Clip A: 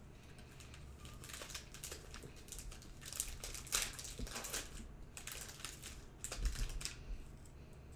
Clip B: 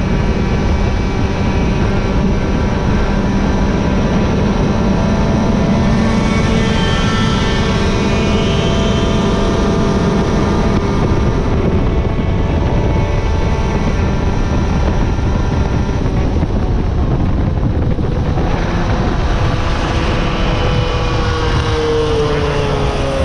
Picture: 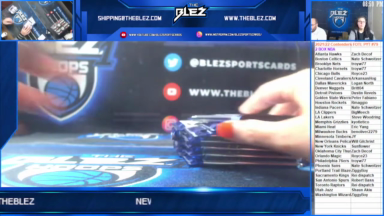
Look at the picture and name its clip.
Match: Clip A